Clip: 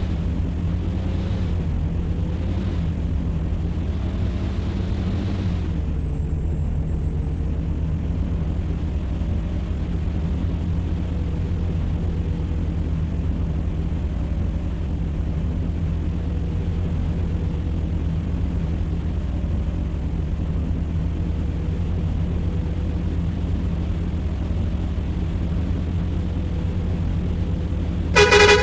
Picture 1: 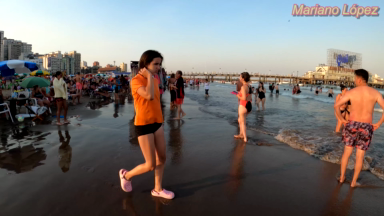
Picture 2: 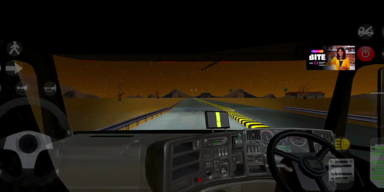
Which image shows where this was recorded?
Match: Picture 2